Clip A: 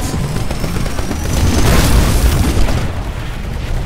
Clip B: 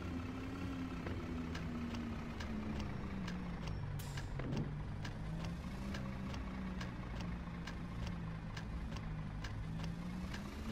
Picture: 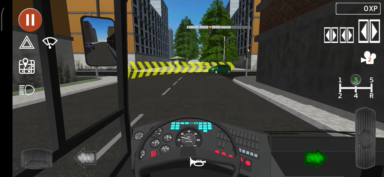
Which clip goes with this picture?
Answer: B